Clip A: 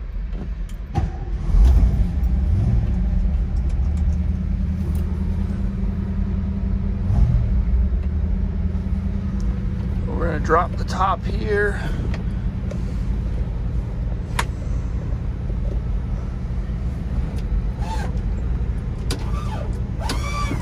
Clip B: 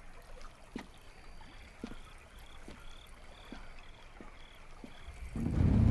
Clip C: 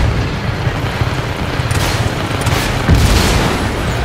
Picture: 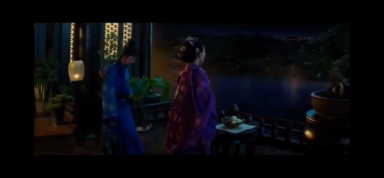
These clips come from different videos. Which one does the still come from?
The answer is B